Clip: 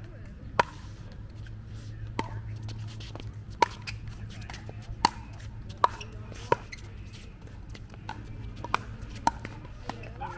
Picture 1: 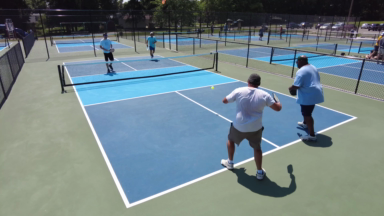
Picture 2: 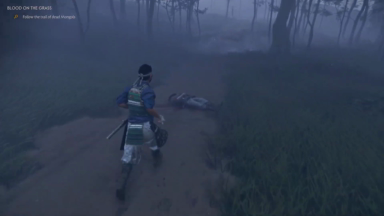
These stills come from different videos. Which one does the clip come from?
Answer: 1